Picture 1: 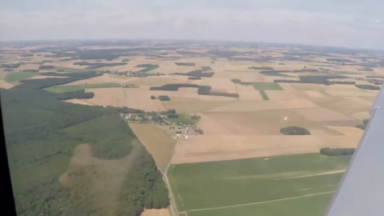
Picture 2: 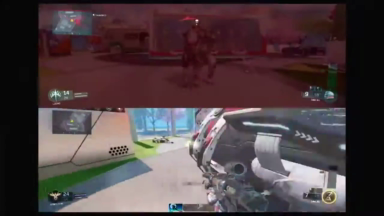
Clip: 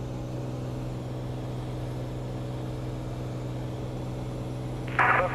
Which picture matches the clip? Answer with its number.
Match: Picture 1